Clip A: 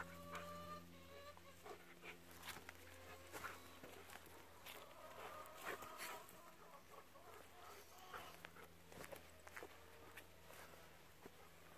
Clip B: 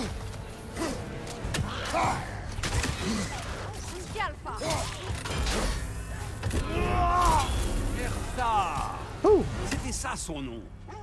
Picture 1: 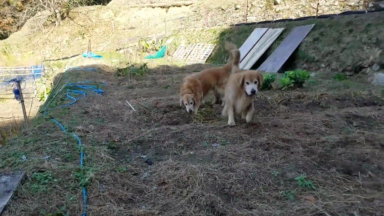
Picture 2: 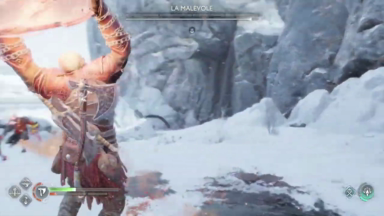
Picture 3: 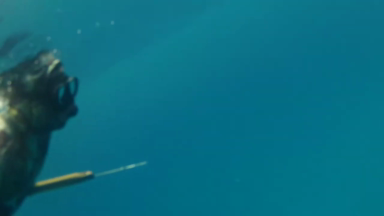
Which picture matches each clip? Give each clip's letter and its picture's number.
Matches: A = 1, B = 2